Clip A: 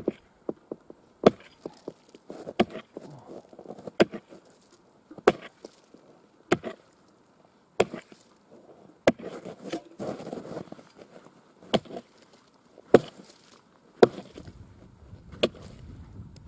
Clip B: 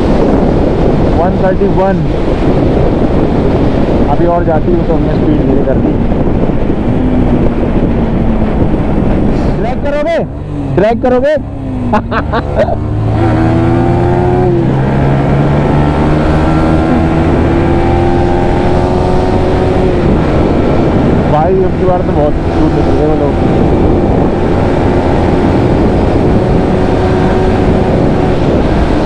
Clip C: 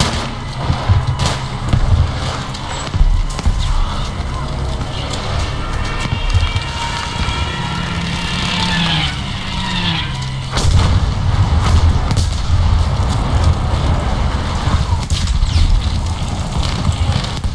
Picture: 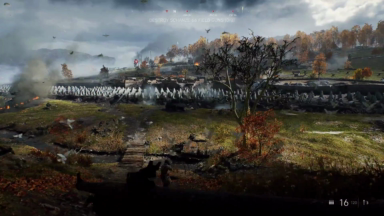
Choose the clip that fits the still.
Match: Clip C